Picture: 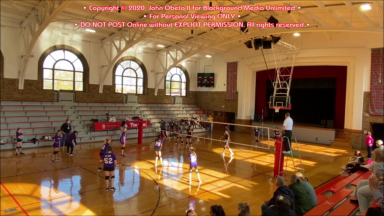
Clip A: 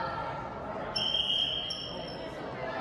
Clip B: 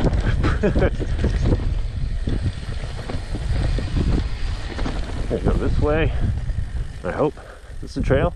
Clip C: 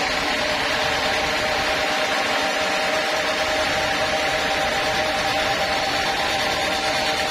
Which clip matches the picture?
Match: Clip A